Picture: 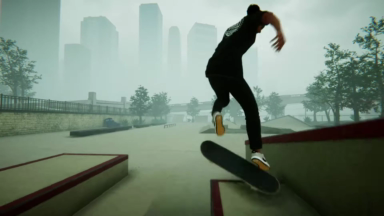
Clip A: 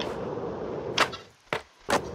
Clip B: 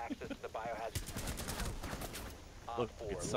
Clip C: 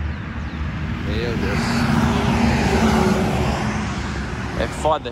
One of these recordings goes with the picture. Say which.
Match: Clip A